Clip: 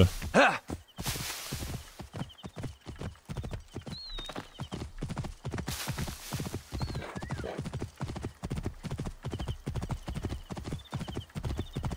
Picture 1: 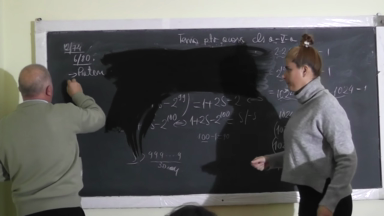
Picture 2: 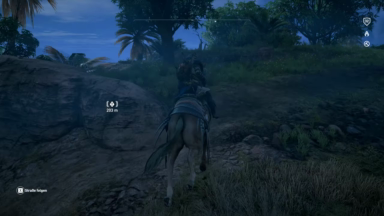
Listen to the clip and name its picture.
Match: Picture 2